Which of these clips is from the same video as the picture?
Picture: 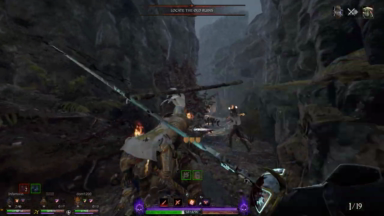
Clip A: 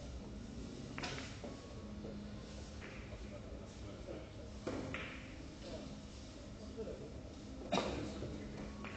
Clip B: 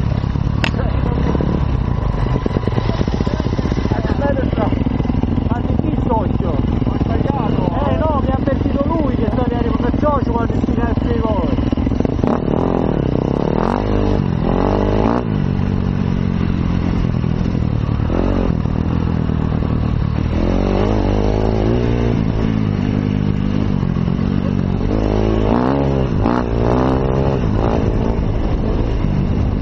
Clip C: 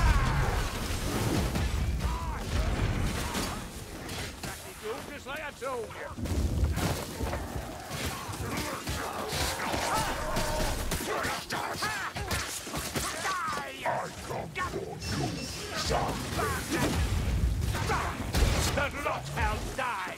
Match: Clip C